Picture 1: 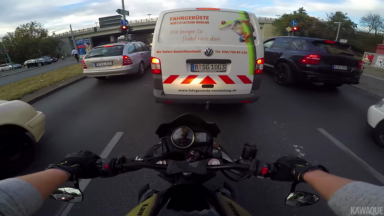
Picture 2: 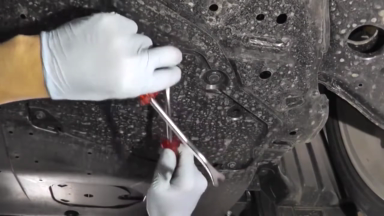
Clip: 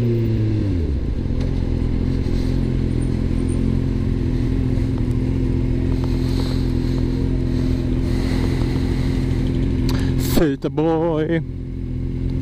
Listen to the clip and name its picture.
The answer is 1